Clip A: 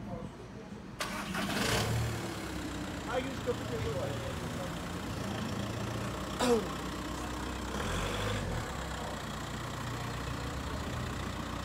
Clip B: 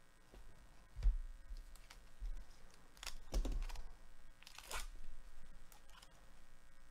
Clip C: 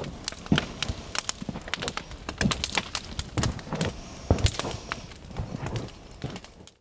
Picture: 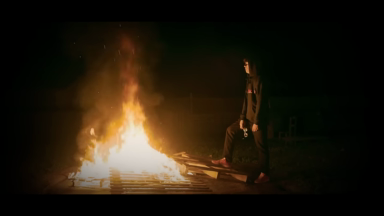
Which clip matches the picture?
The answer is C